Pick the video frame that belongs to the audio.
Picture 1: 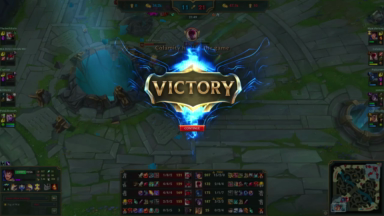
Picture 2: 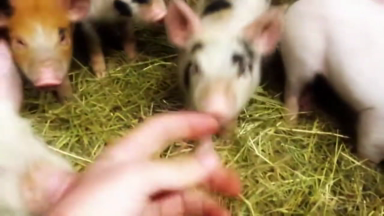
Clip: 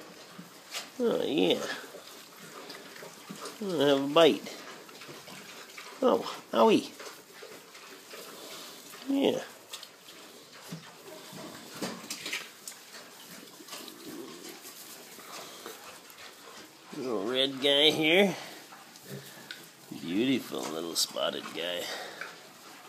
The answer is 2